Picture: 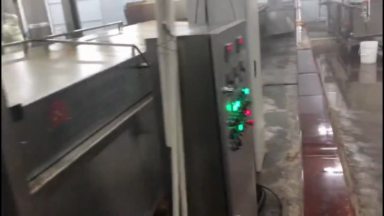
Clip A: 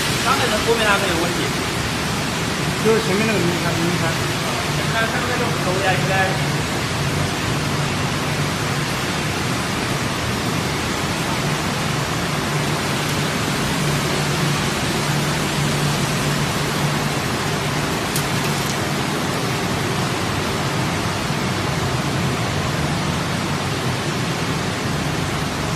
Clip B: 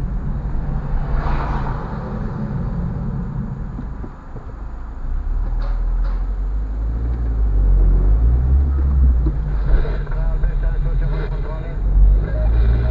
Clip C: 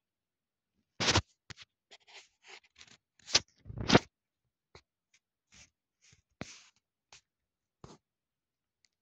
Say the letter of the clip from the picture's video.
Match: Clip A